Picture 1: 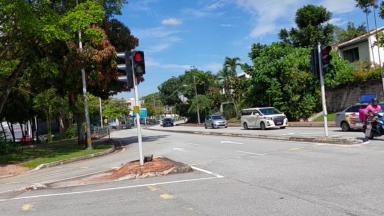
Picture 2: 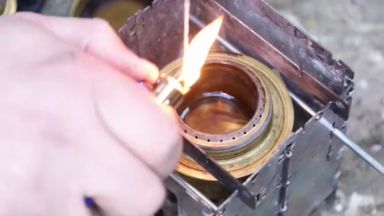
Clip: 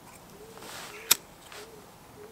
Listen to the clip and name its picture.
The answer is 2